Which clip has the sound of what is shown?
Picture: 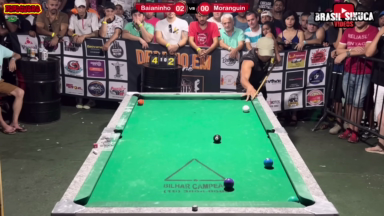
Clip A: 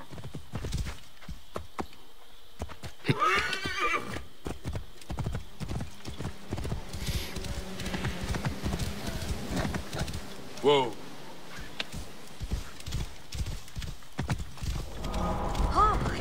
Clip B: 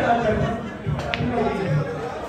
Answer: B